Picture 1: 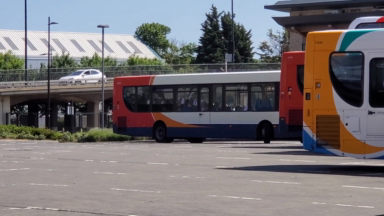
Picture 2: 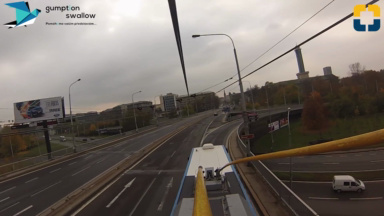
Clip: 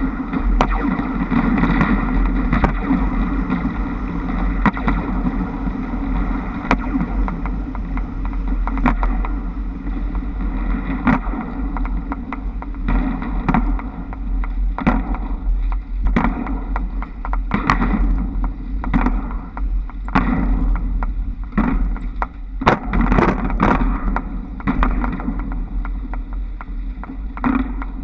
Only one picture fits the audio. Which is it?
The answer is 2